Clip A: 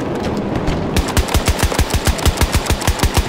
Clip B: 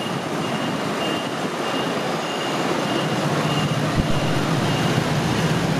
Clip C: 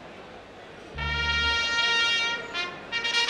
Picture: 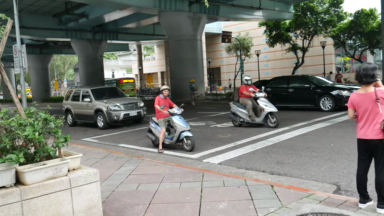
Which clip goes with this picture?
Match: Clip B